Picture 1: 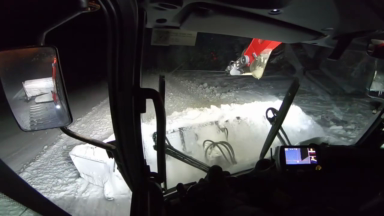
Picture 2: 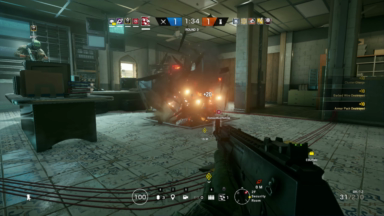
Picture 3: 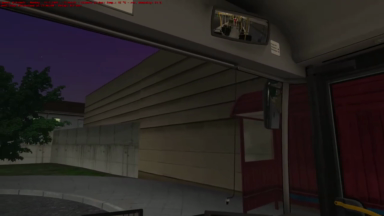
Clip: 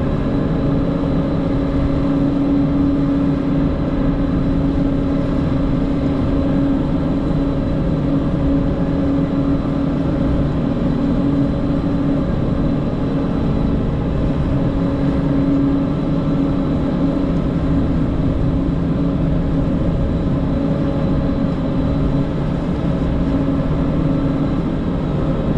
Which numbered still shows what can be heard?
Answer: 1